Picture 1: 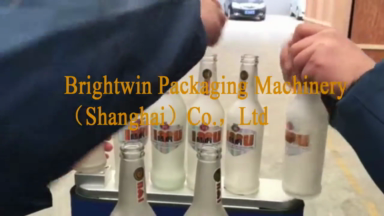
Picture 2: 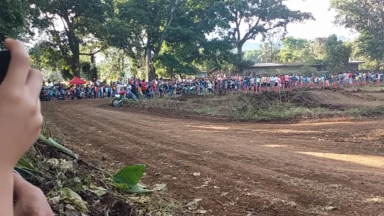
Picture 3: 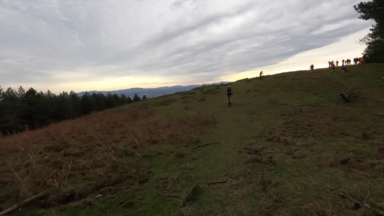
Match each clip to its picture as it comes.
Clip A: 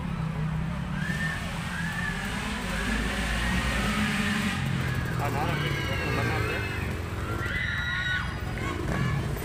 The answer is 2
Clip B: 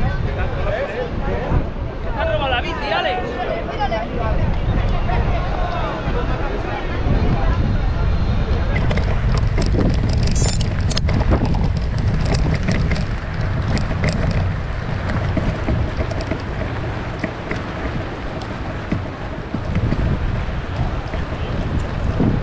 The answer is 3